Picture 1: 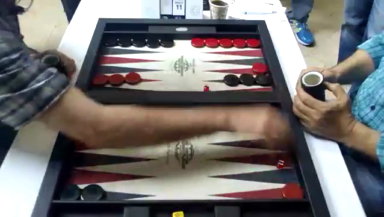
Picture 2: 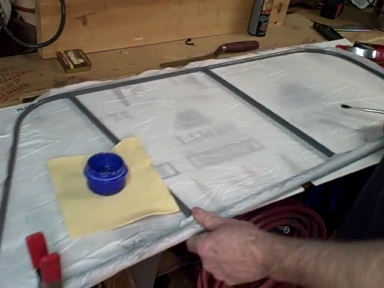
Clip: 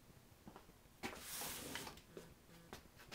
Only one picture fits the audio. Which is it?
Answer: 2